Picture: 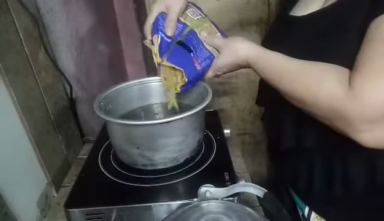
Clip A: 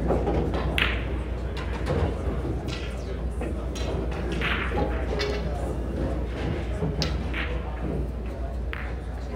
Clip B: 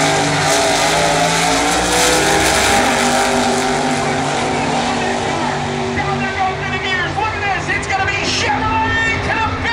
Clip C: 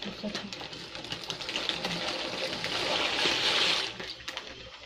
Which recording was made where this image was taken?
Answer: C